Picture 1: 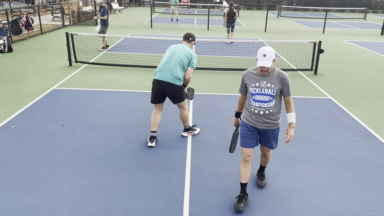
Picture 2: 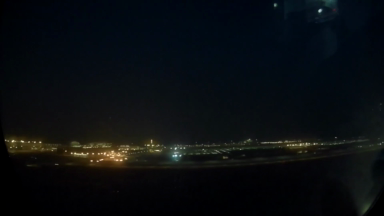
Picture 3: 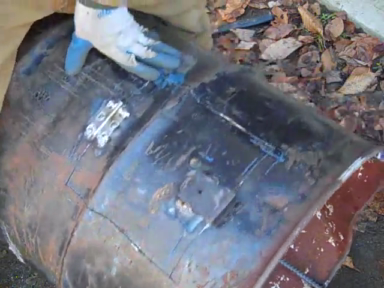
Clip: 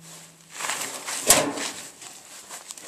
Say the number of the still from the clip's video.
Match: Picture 3